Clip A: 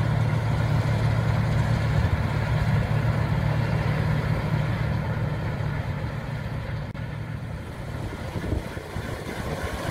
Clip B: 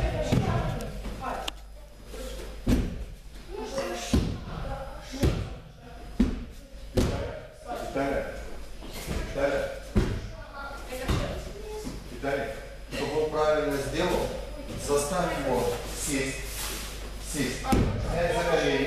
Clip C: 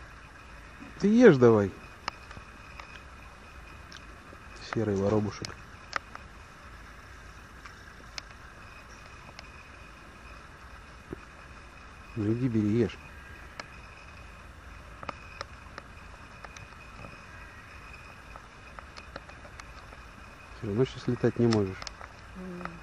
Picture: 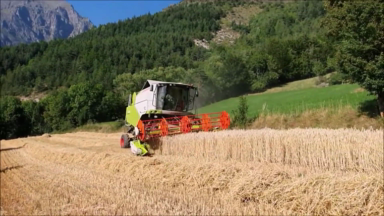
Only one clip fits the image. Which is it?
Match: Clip A